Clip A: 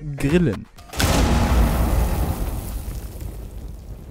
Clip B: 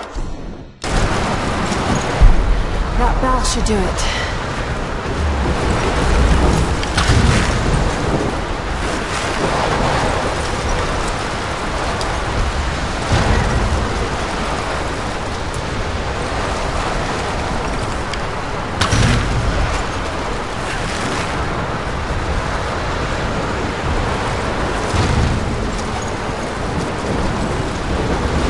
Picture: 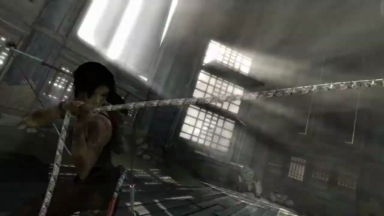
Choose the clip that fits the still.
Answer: B